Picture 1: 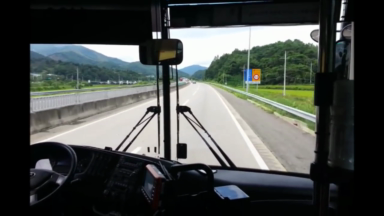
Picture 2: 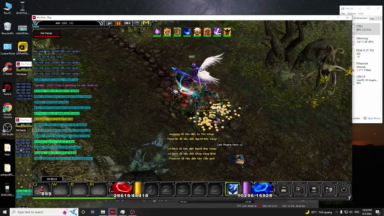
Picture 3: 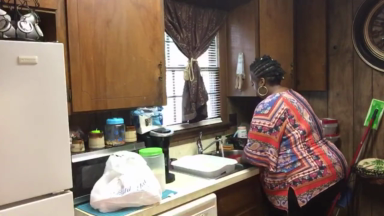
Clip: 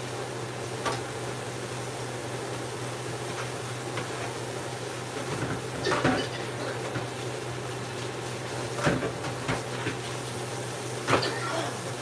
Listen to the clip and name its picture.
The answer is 3